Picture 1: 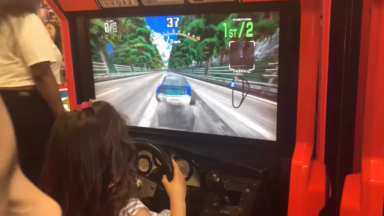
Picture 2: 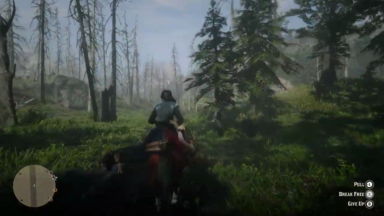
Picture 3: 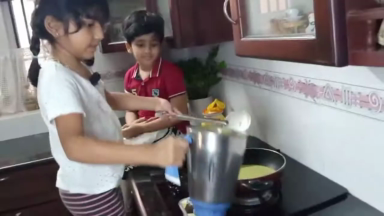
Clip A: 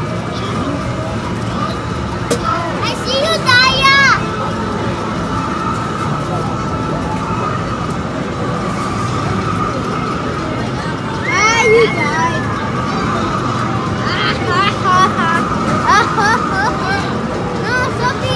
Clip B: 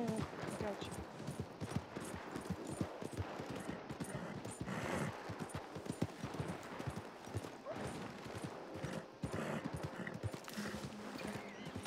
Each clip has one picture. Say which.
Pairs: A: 1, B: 2